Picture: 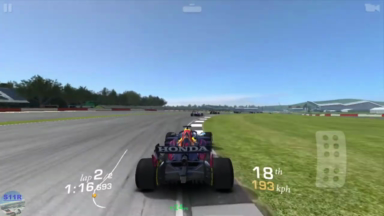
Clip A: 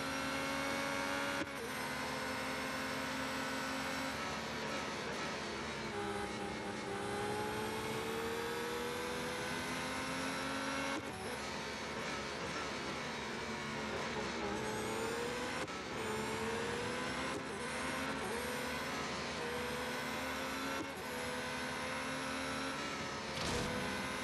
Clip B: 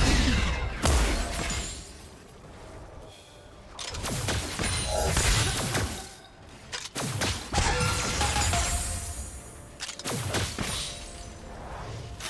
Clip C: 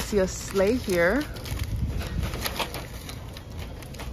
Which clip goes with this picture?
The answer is A